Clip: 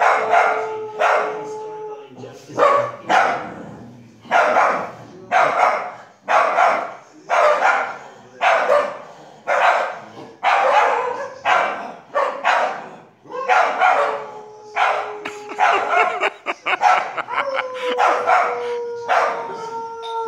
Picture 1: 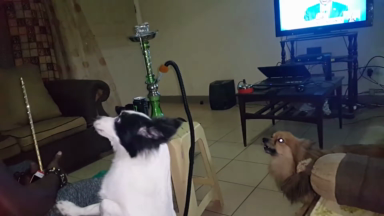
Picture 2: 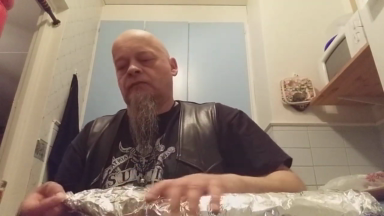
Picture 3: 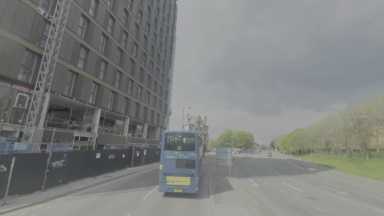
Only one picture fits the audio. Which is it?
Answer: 1